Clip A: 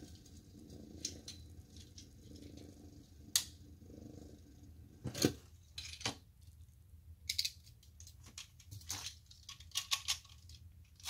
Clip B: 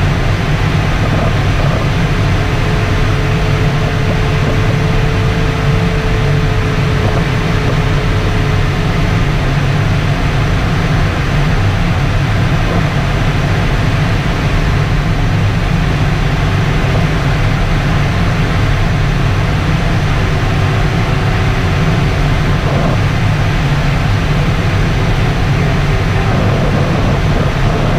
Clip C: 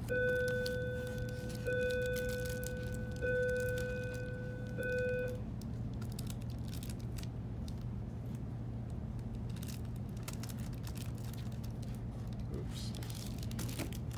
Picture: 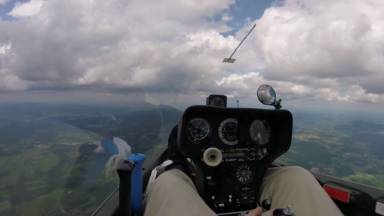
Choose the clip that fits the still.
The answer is B